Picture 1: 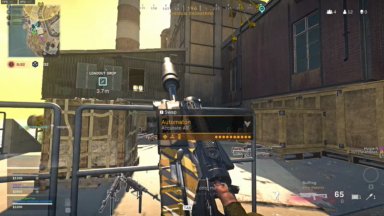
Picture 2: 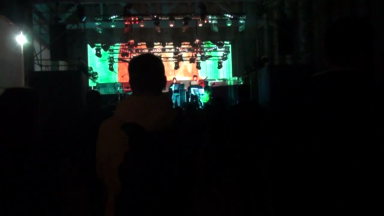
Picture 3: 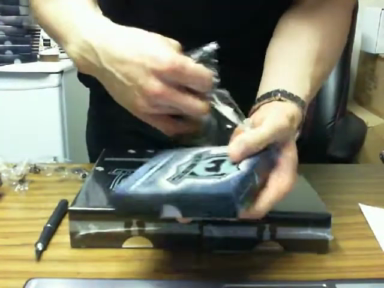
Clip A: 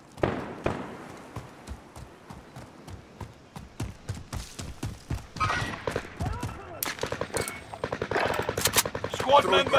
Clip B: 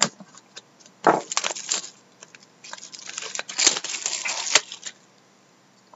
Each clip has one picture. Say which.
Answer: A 1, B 3